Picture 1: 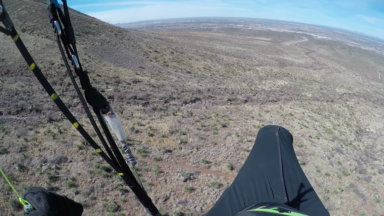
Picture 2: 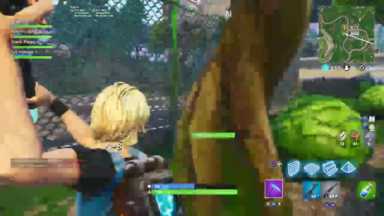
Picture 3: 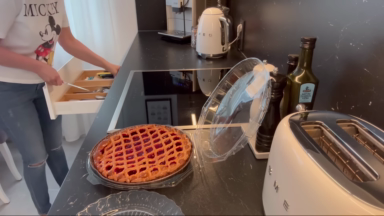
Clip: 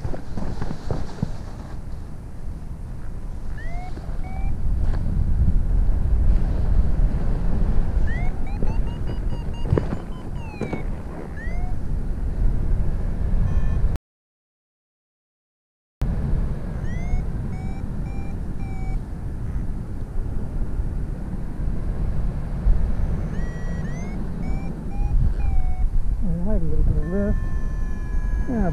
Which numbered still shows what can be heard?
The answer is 1